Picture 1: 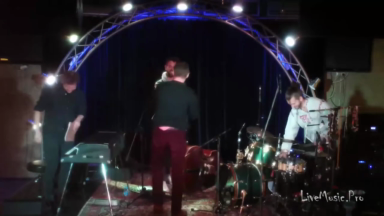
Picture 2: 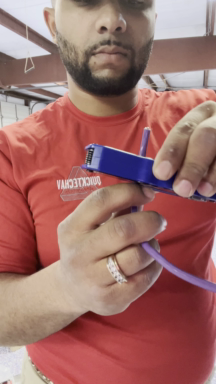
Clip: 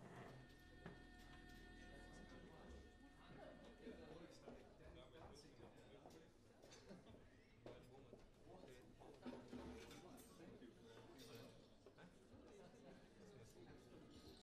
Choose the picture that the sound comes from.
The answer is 1